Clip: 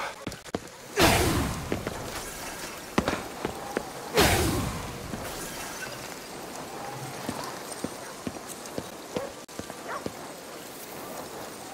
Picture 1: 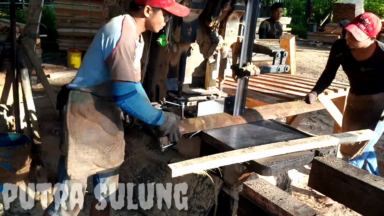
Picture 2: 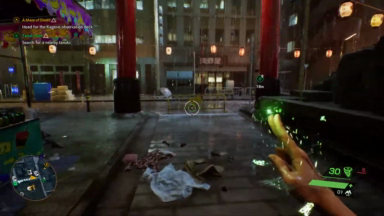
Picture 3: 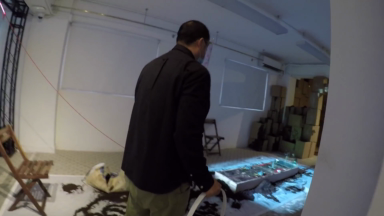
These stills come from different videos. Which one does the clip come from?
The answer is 2